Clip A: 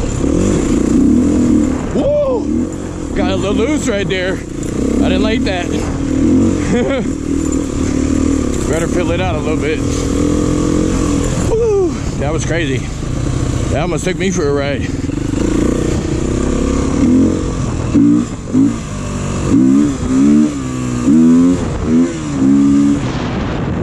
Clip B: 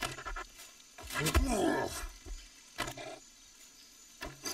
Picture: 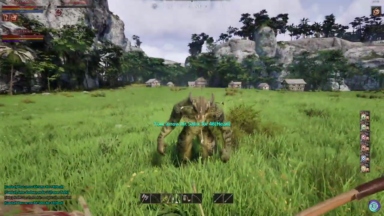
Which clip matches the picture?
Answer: B